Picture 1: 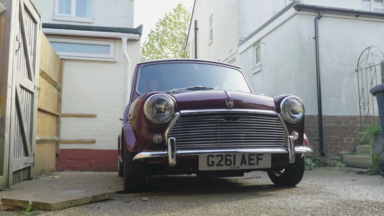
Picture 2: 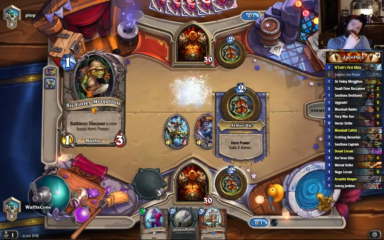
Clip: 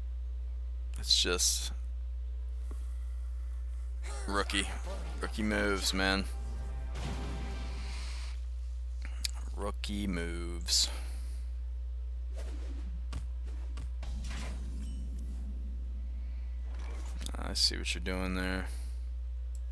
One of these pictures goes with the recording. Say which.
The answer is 2